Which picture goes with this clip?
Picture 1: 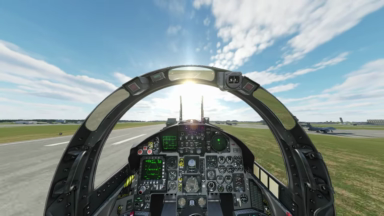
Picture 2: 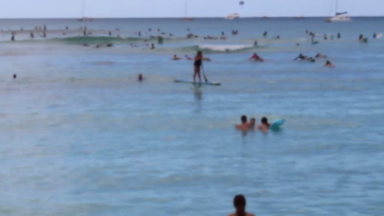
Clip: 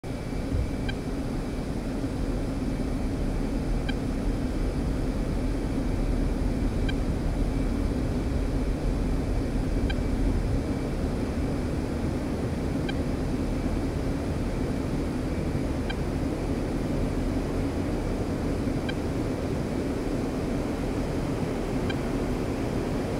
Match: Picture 1